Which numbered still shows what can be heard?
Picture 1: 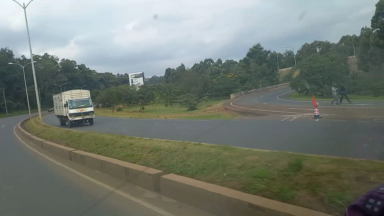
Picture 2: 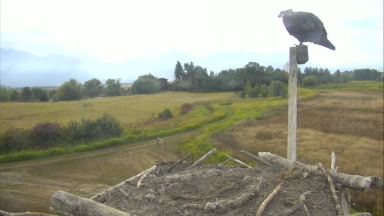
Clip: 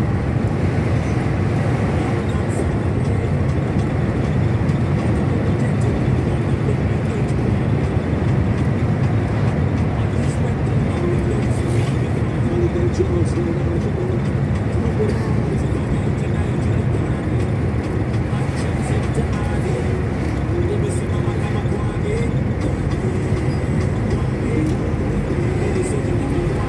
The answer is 1